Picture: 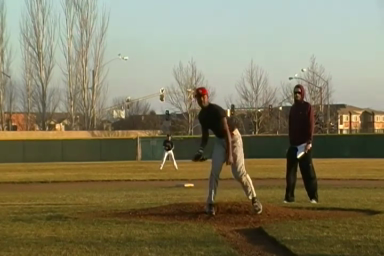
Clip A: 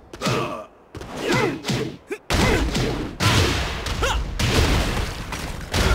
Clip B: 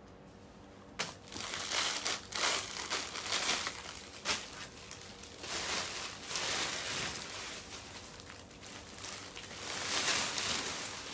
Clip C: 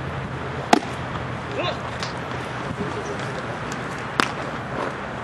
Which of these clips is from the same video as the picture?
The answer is C